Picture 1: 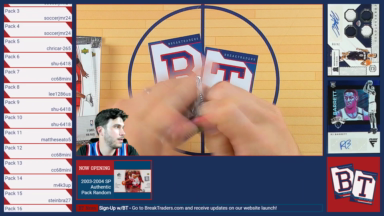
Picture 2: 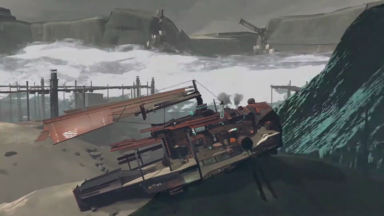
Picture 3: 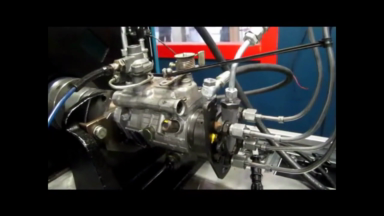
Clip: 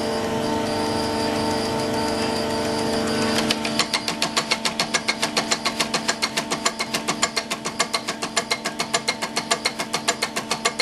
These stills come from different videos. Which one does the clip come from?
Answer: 3